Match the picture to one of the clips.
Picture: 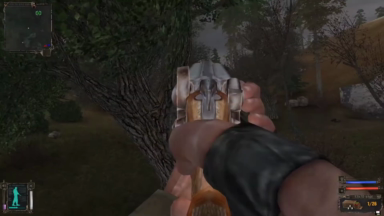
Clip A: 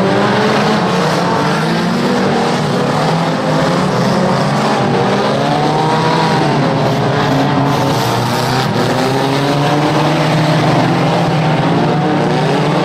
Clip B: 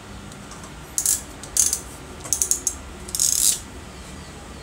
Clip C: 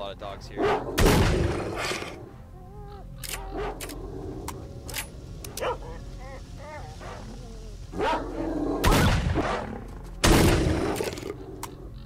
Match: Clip C